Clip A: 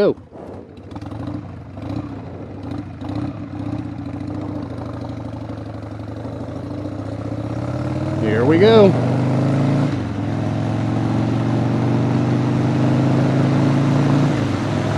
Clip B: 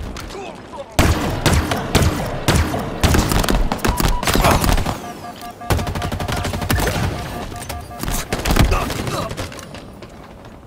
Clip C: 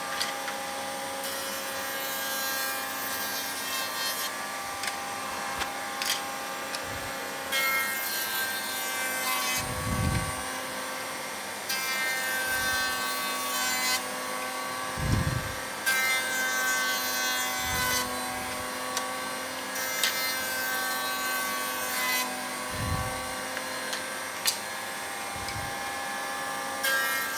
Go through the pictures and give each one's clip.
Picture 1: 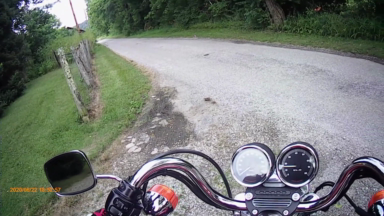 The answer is A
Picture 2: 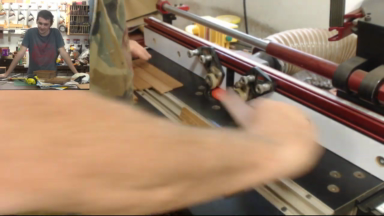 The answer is C